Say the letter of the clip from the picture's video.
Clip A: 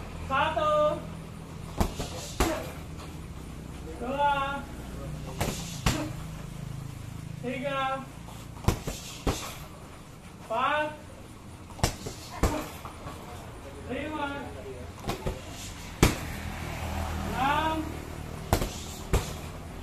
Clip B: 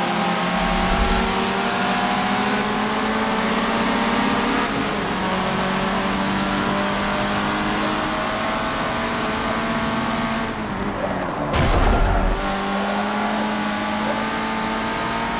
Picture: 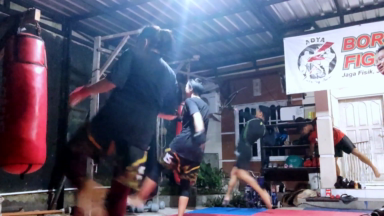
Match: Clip A